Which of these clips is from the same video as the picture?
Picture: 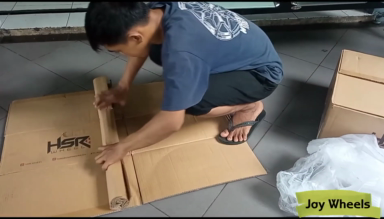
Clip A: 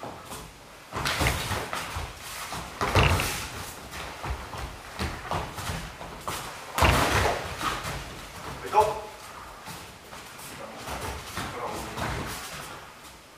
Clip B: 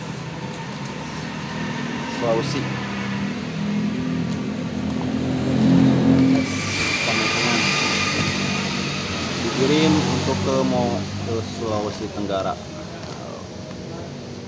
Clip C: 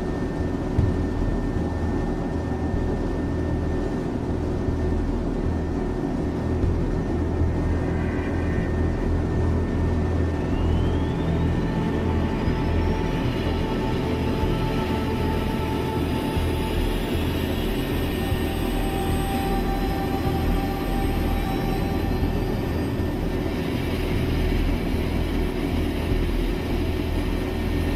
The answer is B